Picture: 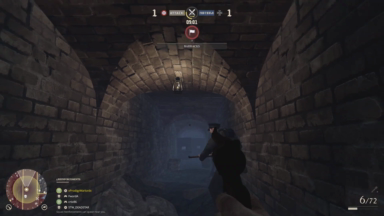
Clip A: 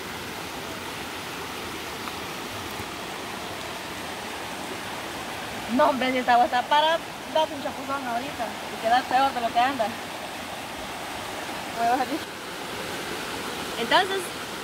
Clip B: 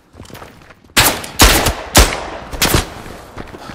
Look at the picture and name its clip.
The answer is B